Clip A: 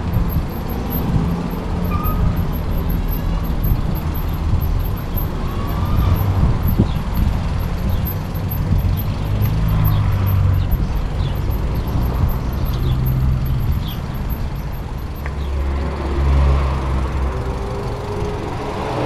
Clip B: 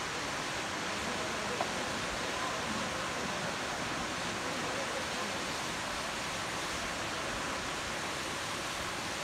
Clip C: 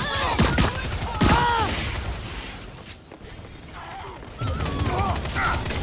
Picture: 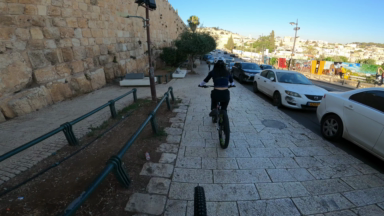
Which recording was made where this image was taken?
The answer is A